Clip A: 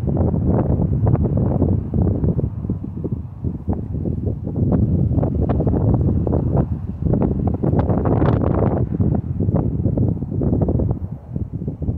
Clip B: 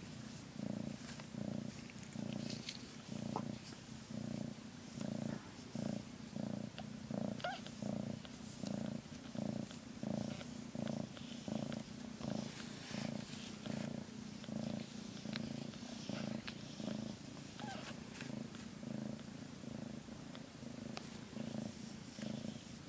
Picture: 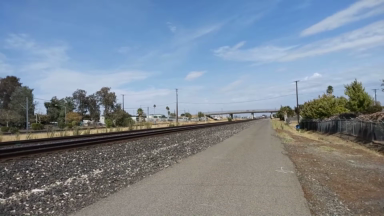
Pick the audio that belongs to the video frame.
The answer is A